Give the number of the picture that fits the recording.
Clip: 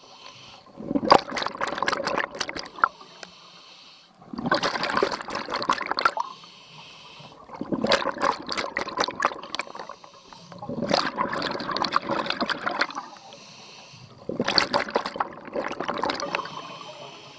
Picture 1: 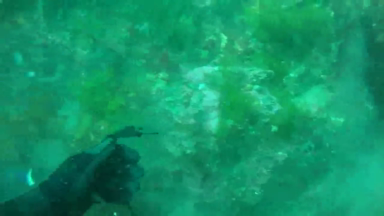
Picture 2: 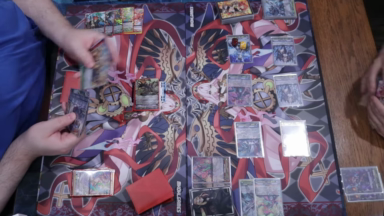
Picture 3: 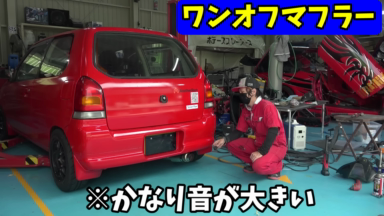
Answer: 1